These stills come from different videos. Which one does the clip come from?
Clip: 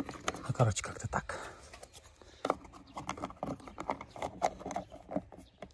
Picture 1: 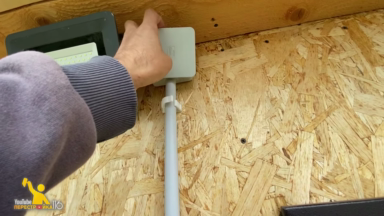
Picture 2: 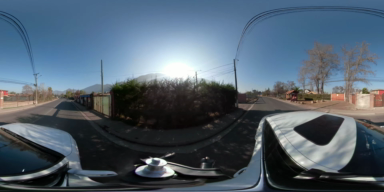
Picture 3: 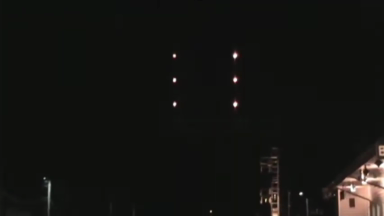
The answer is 1